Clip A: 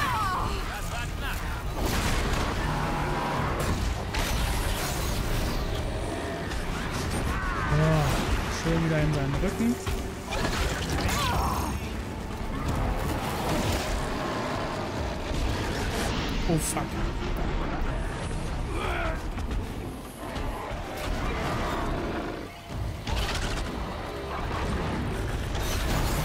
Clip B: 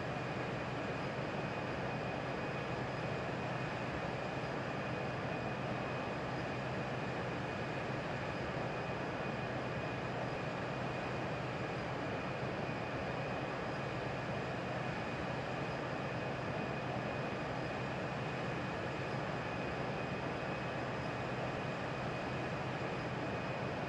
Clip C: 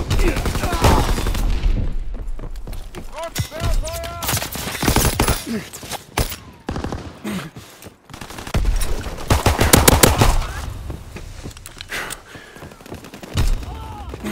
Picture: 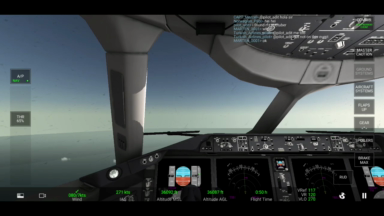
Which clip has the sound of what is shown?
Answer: B